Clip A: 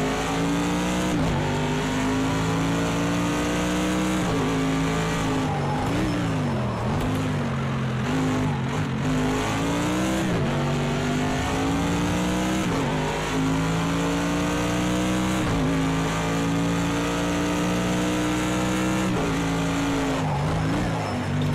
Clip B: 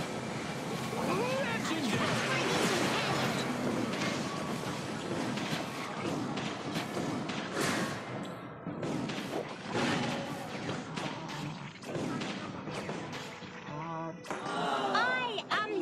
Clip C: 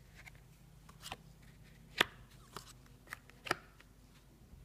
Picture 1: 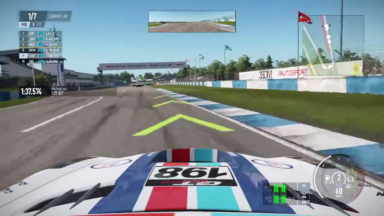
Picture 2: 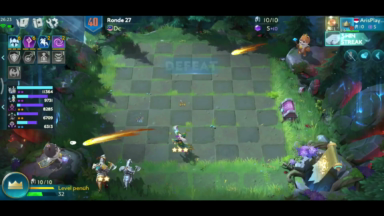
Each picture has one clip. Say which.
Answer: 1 A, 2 B